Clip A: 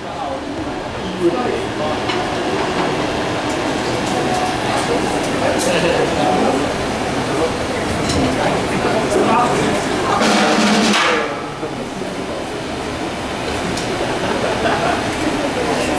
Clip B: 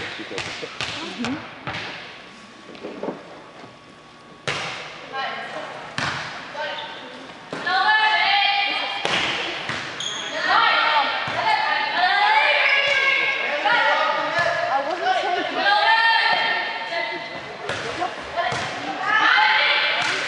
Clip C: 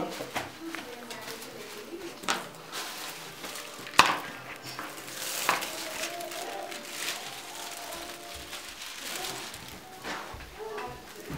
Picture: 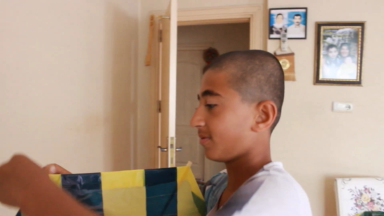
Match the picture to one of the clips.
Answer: C